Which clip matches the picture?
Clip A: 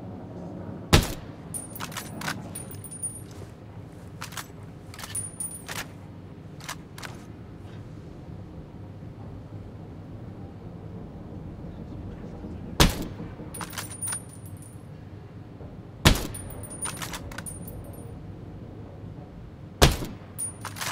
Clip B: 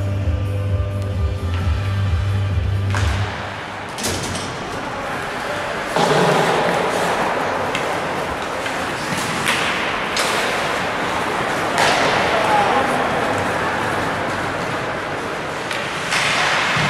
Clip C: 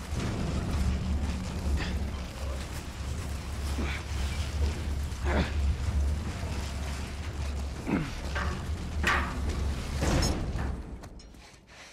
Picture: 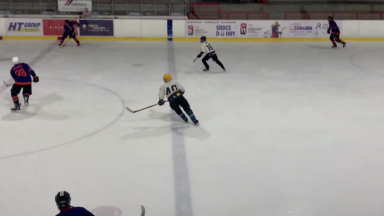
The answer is B